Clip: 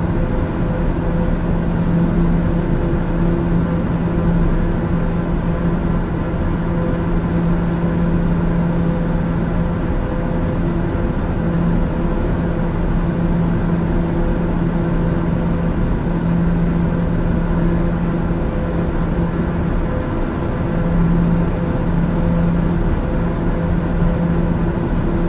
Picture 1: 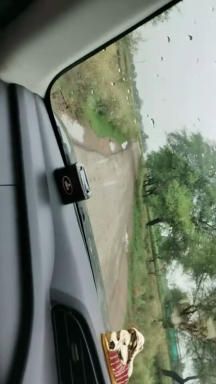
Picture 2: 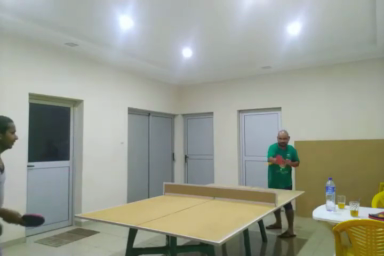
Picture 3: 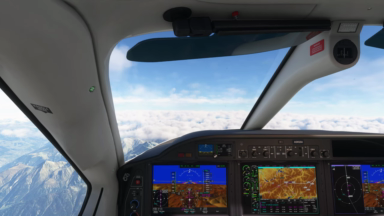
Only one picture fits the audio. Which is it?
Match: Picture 3